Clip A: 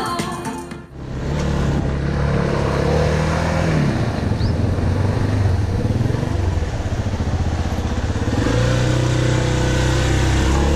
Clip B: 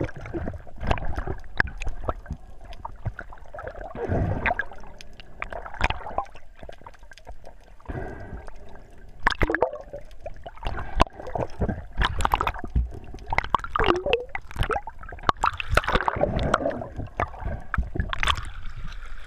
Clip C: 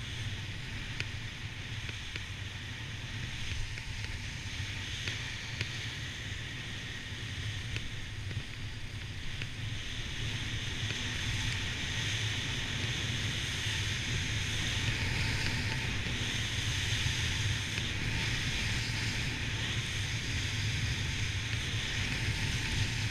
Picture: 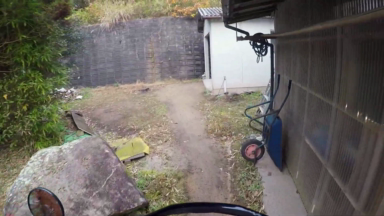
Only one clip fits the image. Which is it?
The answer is A